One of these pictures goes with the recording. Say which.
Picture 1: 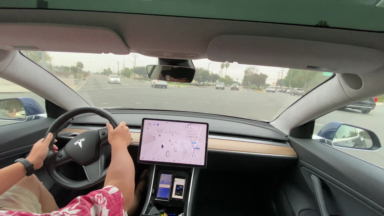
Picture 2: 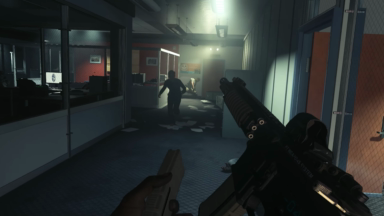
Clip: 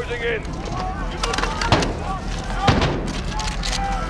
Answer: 2